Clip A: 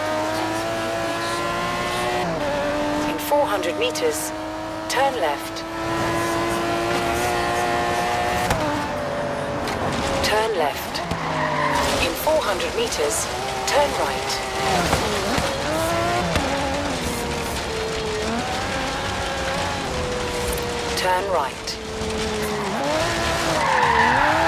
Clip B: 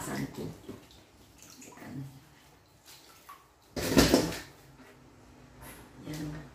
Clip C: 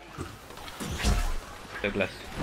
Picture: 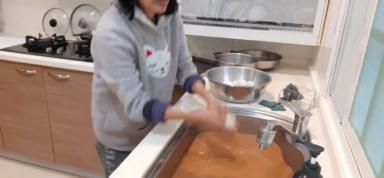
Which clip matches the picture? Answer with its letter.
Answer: B